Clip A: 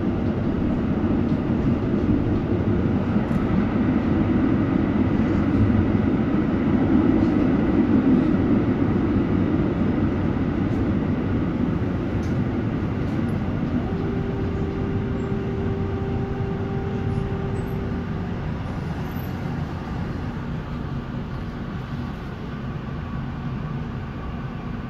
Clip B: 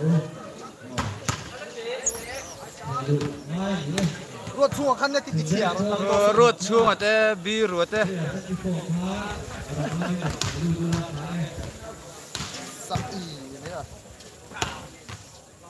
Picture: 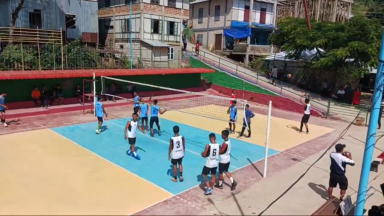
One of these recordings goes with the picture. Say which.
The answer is B